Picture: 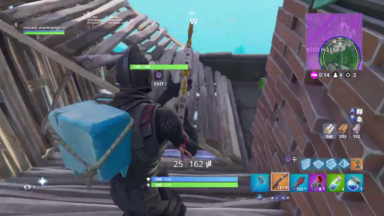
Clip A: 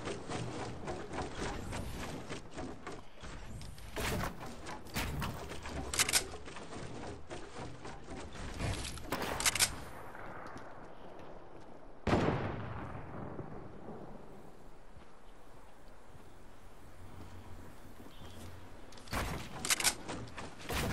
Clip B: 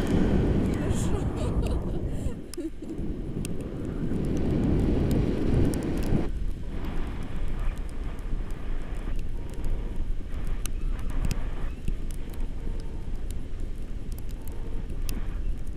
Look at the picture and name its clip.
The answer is A